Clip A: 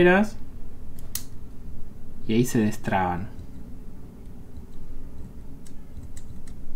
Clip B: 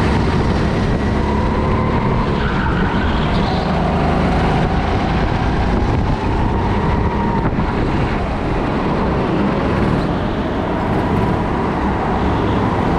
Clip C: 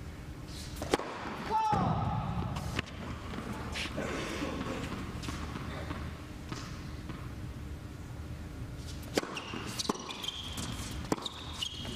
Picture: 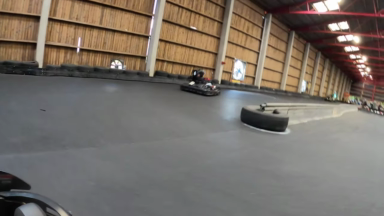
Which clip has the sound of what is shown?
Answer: B